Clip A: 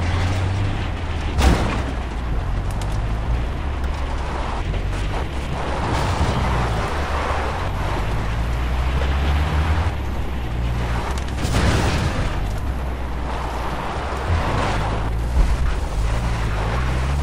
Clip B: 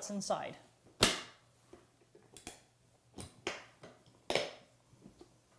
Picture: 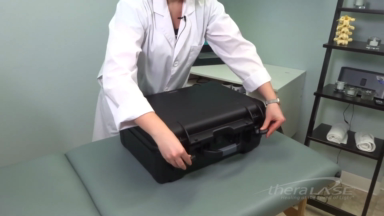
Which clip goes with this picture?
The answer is B